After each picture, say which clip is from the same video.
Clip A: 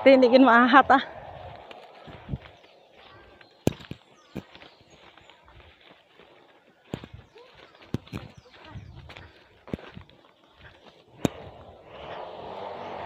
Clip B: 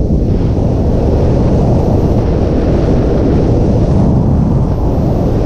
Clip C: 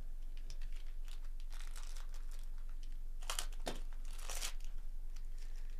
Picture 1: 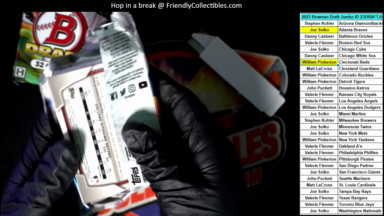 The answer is C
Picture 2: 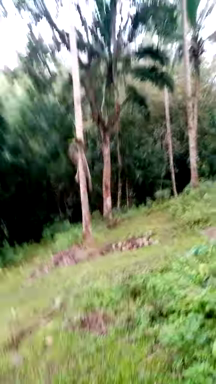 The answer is A